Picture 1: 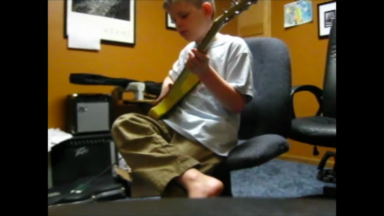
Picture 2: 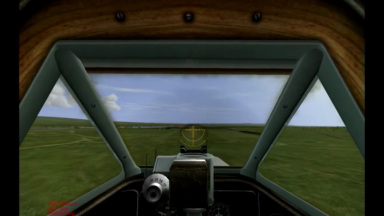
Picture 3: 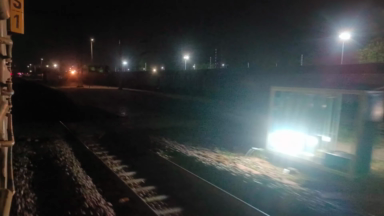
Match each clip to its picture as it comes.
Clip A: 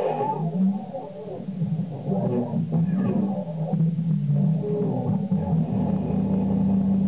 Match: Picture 1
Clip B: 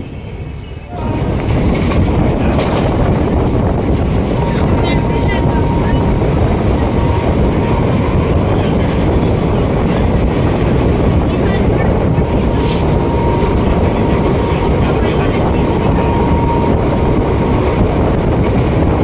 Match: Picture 3